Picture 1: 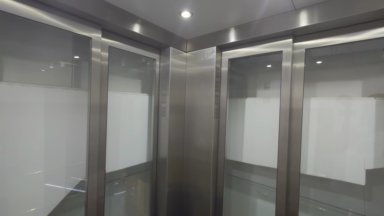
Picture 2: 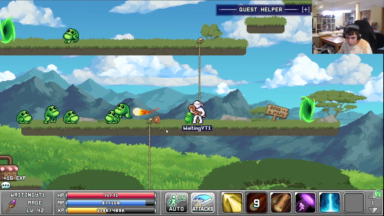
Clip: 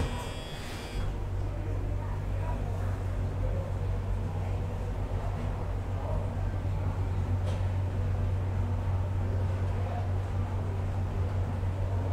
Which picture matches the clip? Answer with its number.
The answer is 1